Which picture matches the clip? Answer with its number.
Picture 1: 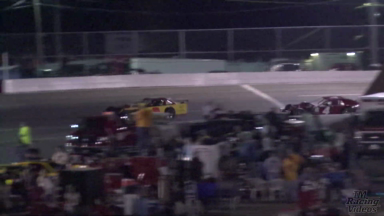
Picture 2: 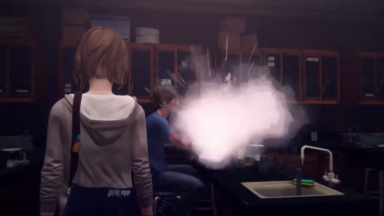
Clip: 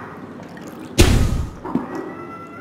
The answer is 2